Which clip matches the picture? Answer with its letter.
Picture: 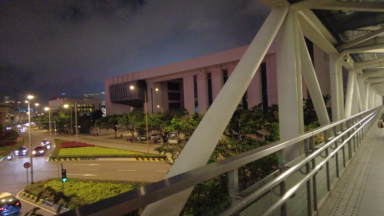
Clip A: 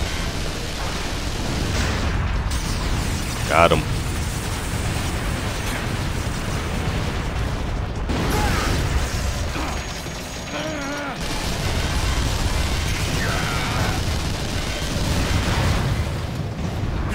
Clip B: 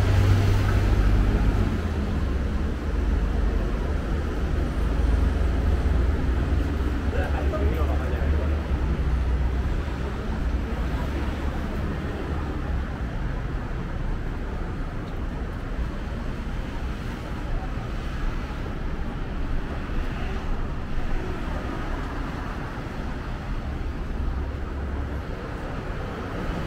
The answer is B